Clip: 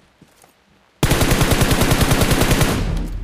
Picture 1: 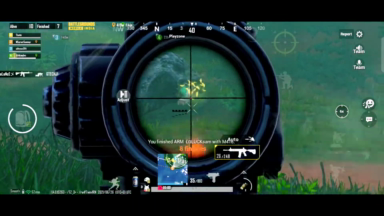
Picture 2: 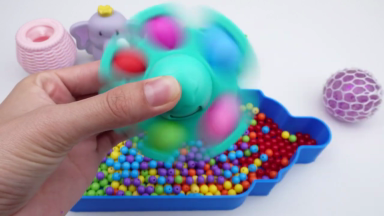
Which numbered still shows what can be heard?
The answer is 1